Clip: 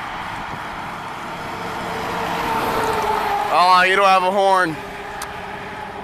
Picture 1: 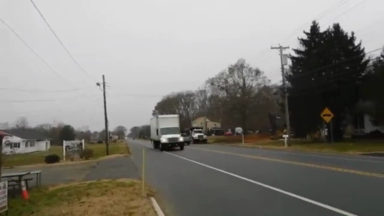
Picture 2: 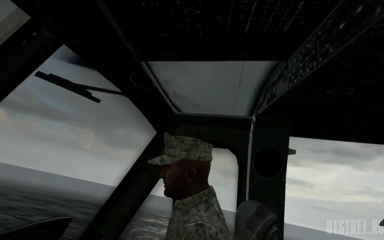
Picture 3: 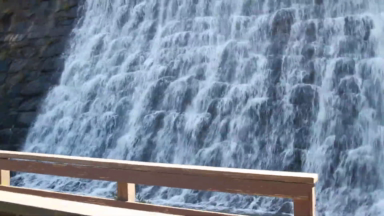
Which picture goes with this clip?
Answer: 1